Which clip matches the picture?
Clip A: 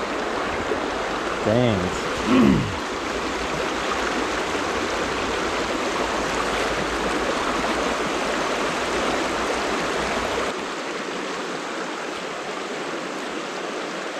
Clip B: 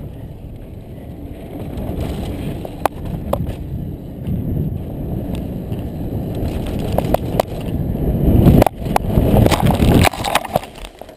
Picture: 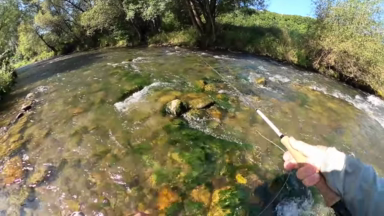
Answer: A